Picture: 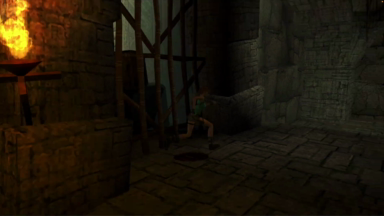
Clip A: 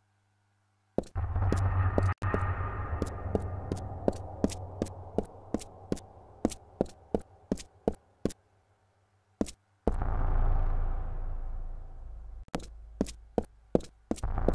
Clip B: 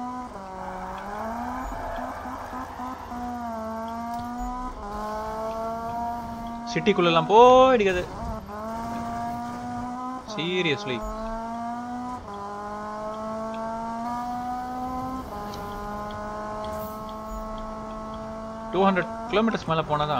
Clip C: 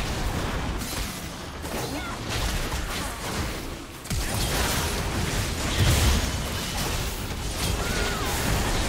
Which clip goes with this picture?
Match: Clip A